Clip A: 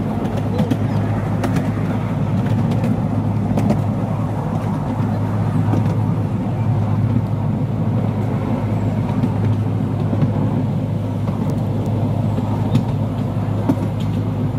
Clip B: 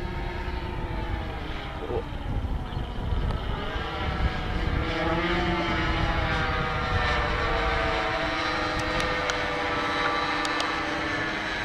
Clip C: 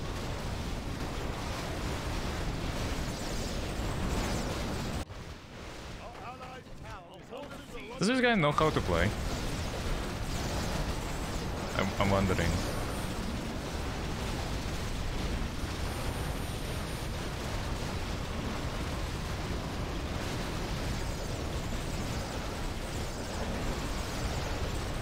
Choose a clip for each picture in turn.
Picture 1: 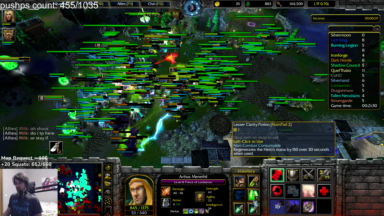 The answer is C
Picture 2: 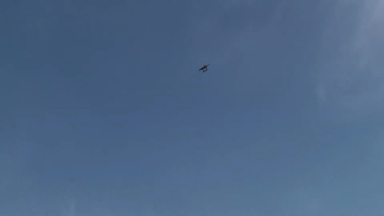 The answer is B